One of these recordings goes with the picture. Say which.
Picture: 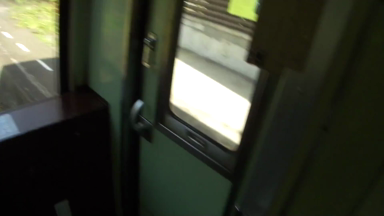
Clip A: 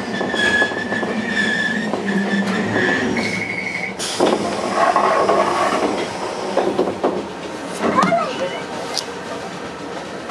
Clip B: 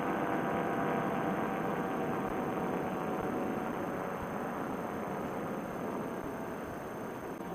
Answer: A